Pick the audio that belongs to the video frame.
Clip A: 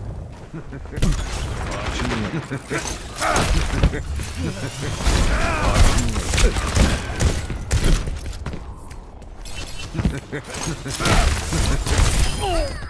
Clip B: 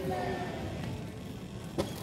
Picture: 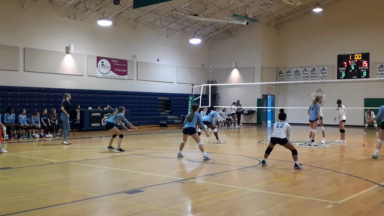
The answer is B